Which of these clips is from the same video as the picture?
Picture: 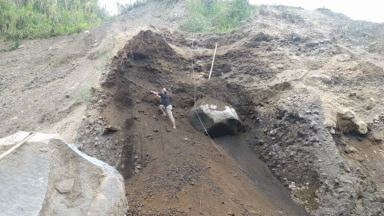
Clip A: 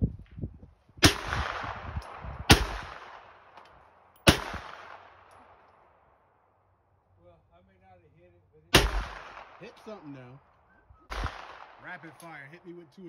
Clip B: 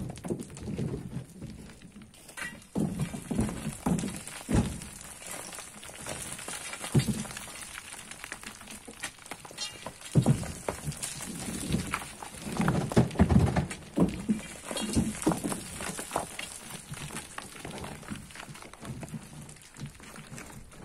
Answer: B